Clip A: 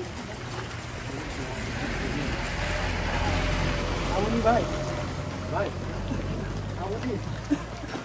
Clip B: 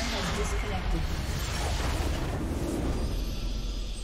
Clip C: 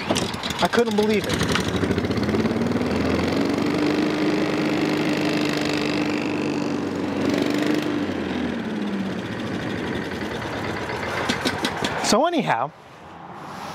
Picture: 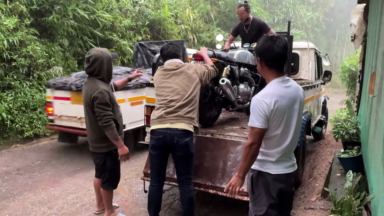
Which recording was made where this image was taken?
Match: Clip A